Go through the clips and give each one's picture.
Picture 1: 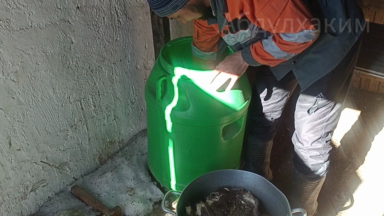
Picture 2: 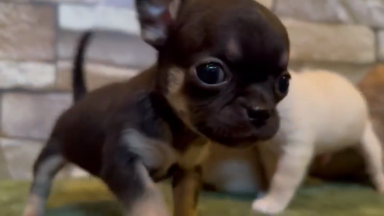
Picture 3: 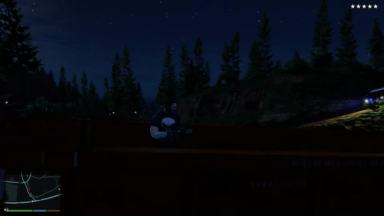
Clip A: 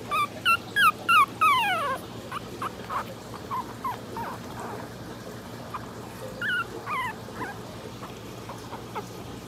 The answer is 2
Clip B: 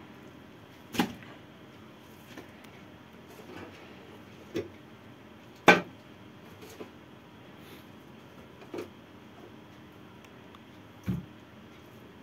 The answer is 1